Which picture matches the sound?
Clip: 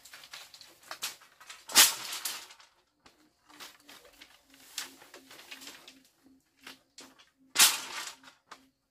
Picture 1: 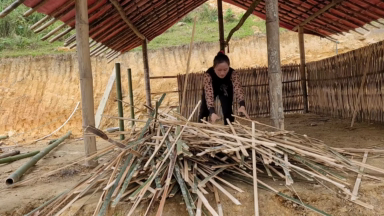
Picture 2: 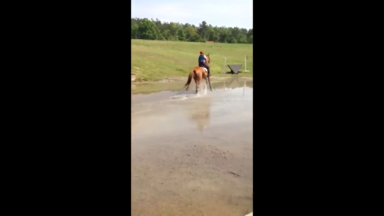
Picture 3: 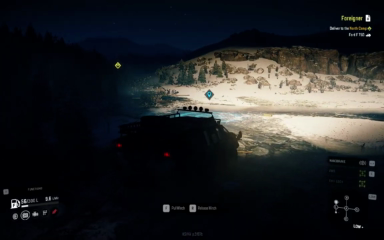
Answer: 1